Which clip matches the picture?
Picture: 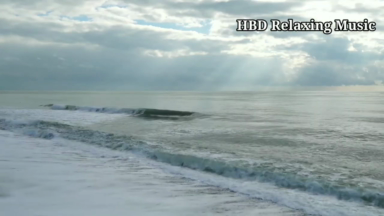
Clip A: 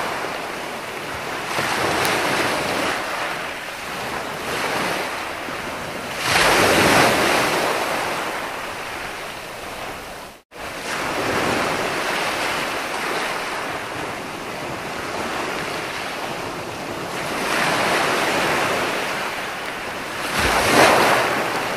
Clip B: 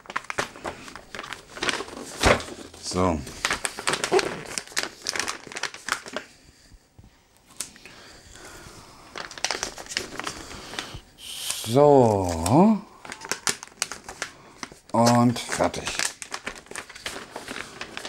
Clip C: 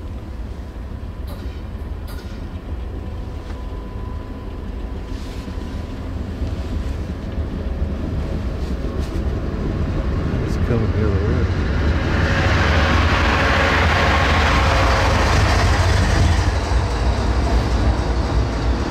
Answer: A